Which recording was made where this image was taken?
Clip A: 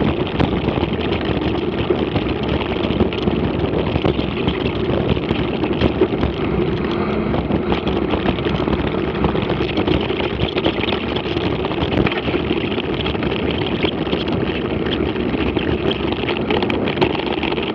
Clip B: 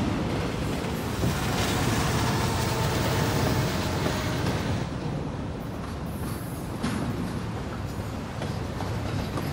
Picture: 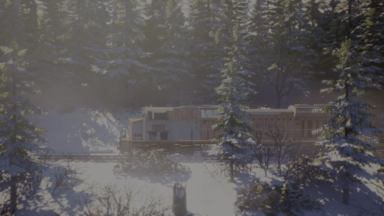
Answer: B